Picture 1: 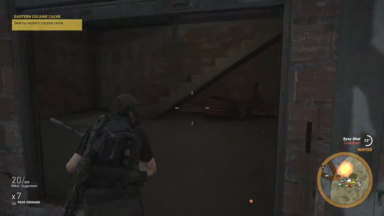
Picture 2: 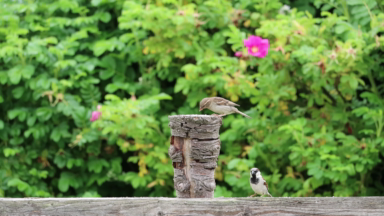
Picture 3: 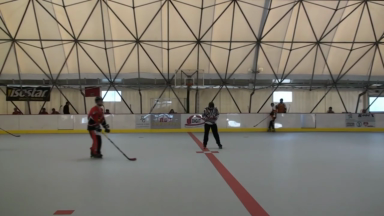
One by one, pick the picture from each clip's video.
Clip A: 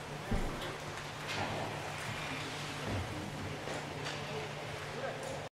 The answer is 3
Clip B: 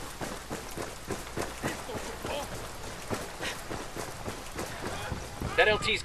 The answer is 1